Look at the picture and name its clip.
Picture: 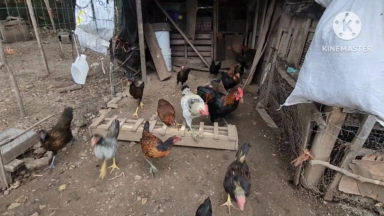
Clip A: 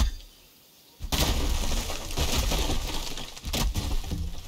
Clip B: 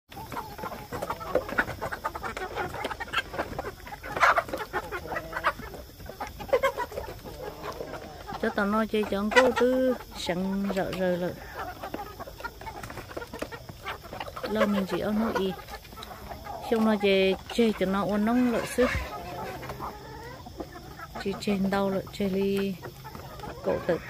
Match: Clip B